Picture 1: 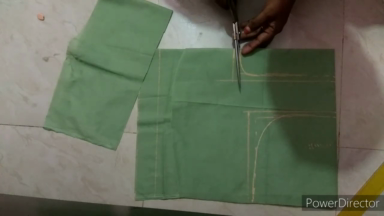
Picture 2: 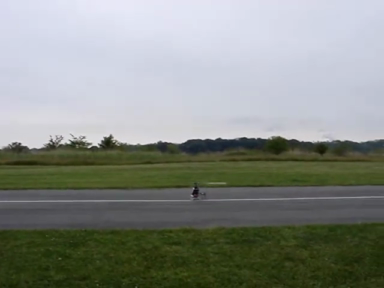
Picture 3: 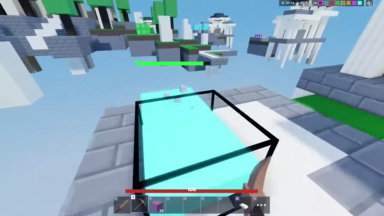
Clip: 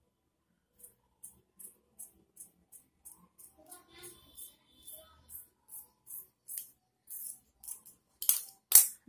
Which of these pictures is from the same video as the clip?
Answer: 1